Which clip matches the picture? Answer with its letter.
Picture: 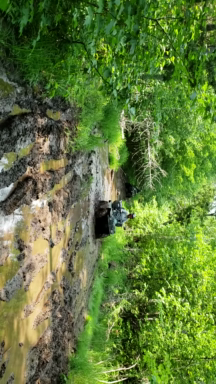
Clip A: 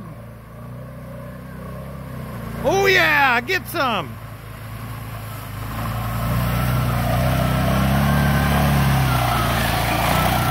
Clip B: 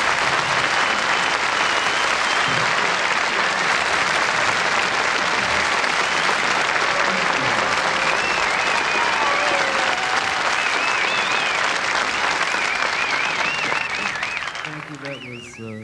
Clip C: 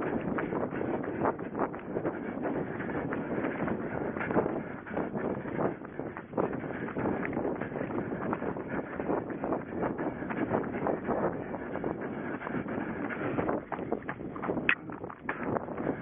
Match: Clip A